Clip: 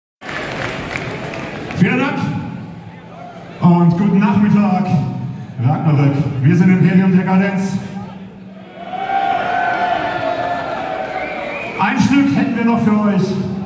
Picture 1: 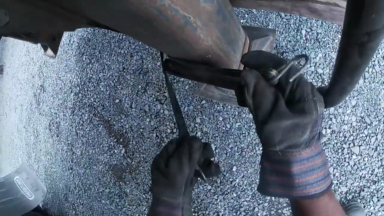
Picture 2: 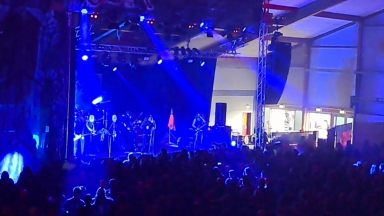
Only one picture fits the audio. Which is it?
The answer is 2